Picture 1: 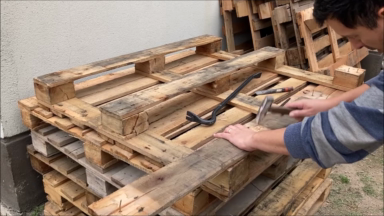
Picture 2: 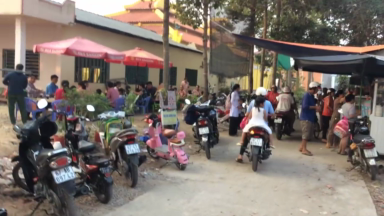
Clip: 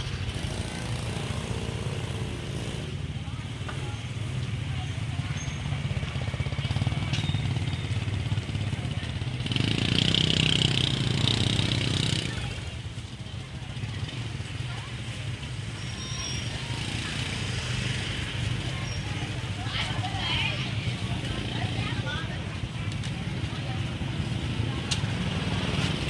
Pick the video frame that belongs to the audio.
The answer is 2